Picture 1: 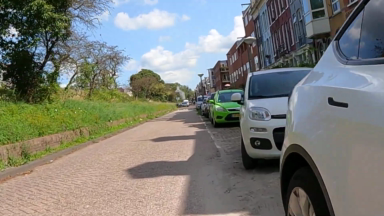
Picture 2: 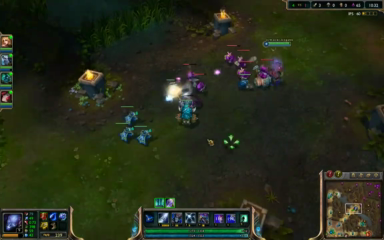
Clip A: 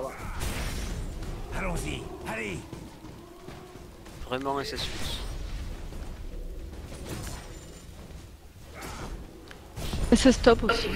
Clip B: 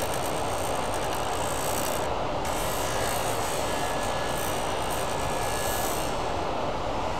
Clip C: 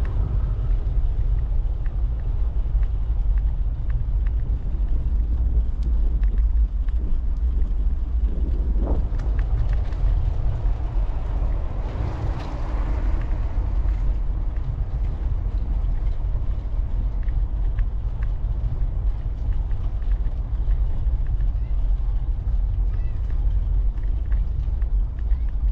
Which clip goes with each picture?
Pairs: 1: C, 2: A